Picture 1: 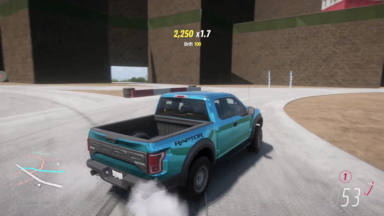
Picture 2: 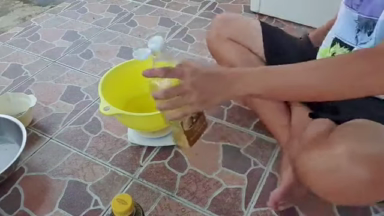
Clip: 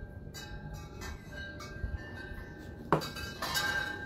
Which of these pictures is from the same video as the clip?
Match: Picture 2